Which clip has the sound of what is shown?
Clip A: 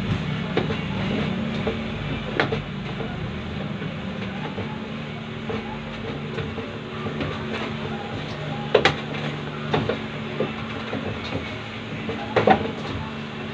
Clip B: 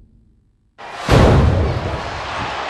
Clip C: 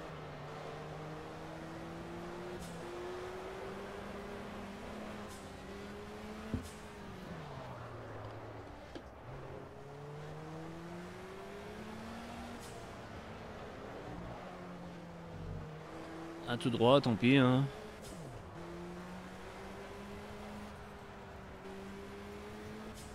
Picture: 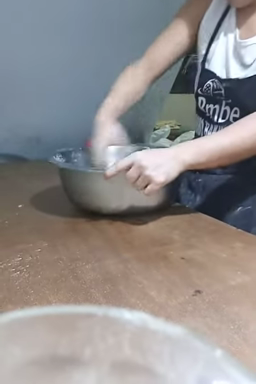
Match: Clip A